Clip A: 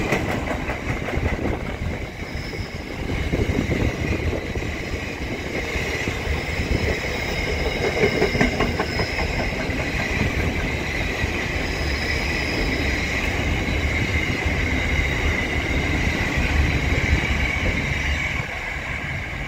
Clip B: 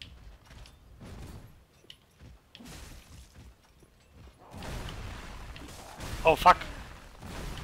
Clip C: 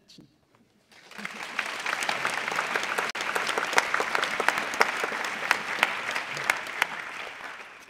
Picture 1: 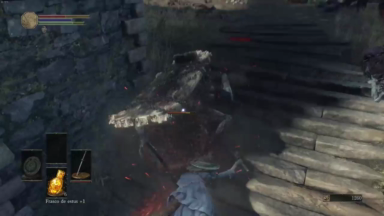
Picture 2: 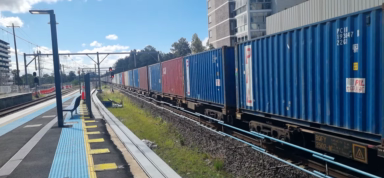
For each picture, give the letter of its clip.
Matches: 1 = B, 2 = A